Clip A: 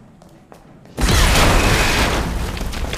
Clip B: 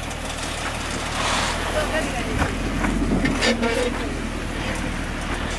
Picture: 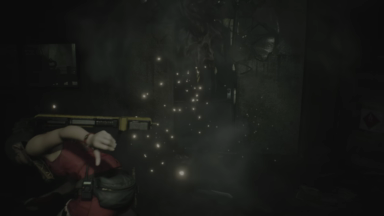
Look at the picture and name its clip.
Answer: A